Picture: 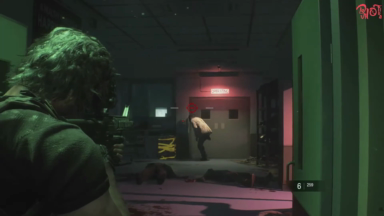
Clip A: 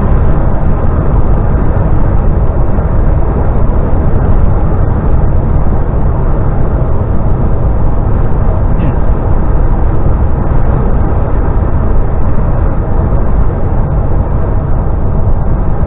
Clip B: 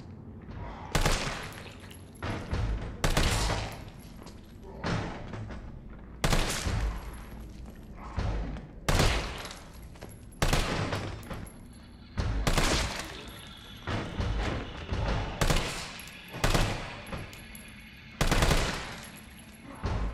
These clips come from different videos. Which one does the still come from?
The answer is B